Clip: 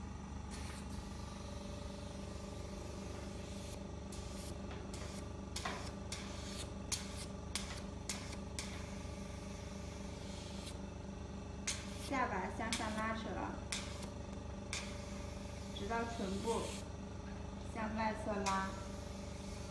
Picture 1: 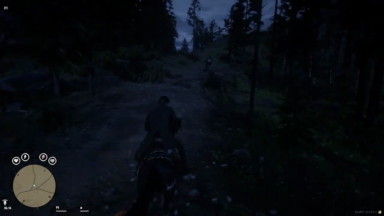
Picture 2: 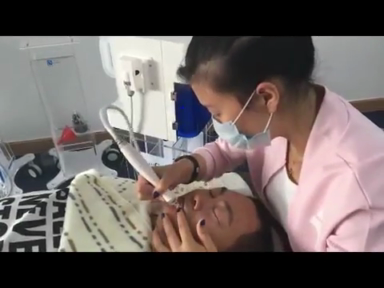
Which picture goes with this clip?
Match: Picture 2